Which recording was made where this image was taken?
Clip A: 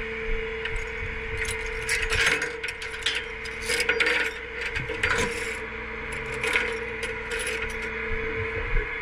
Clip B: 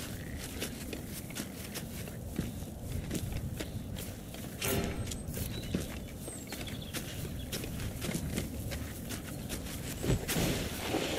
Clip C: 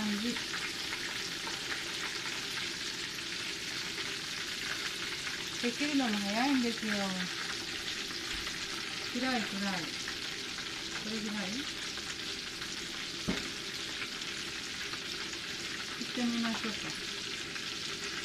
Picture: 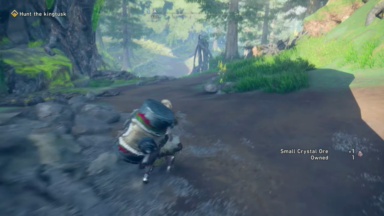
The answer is B